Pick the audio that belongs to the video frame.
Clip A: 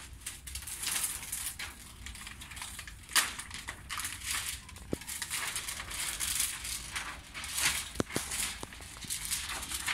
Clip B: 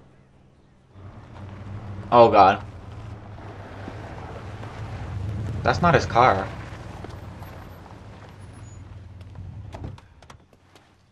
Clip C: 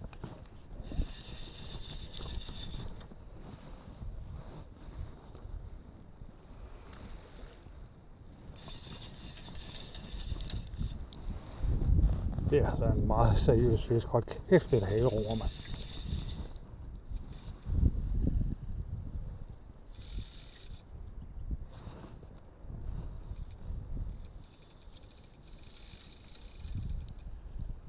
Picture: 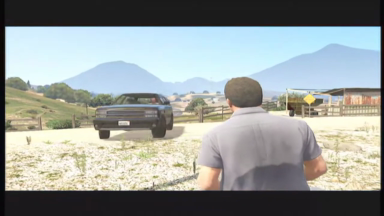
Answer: B